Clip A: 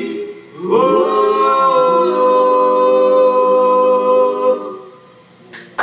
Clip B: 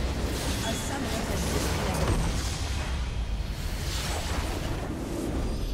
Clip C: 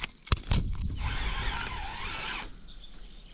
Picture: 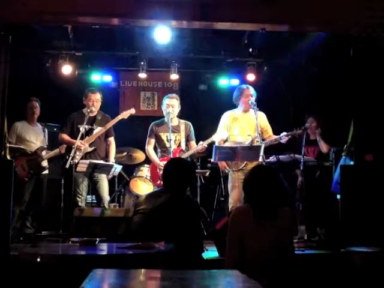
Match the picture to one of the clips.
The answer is A